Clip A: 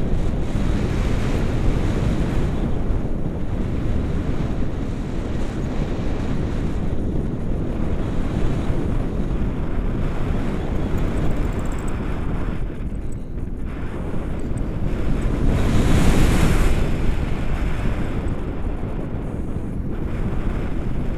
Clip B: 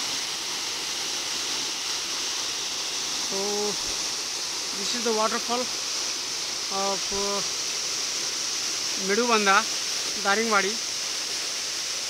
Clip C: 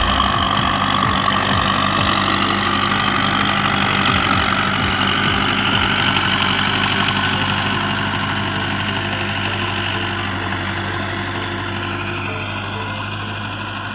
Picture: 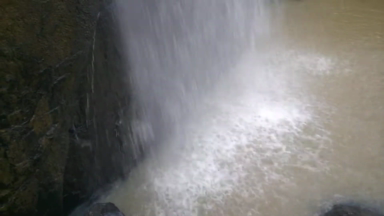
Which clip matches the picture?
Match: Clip B